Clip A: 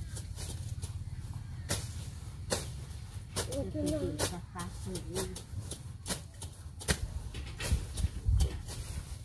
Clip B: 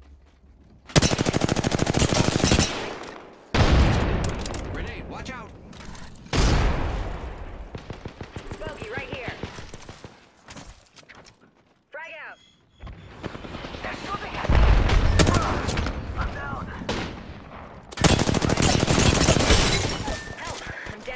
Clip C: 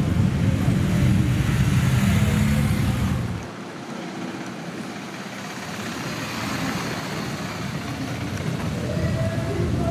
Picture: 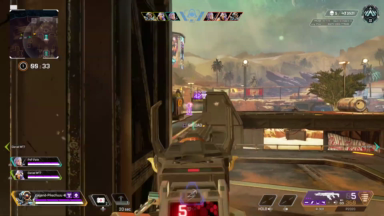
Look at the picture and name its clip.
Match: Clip B